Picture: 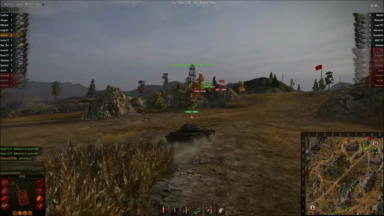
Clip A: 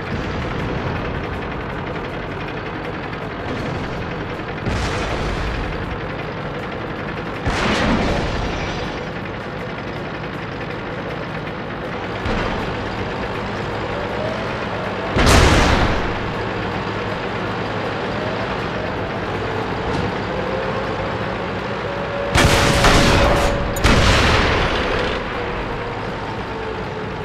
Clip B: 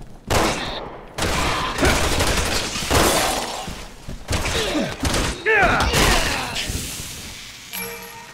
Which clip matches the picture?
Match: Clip A